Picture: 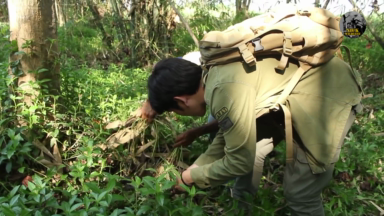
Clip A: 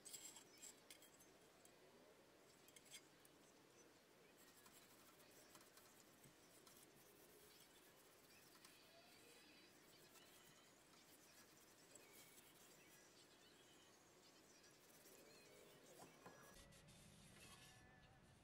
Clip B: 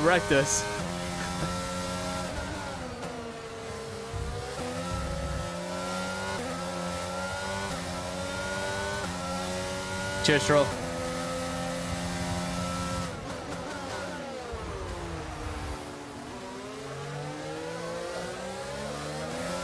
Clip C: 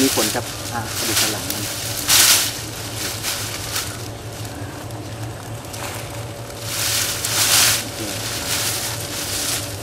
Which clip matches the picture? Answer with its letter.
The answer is C